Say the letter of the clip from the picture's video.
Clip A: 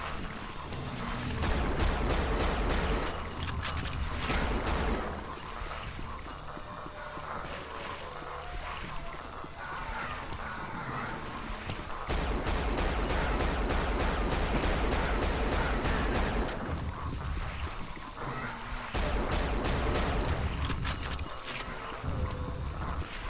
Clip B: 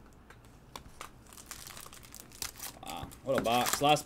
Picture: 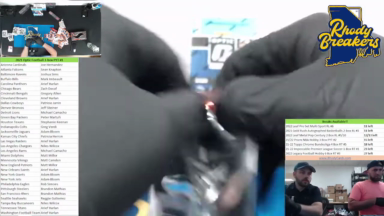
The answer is B